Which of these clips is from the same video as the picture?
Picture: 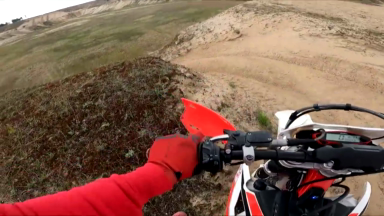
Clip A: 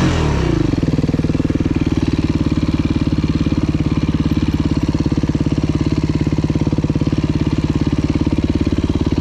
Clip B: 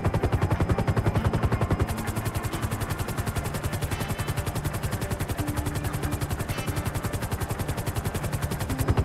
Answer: A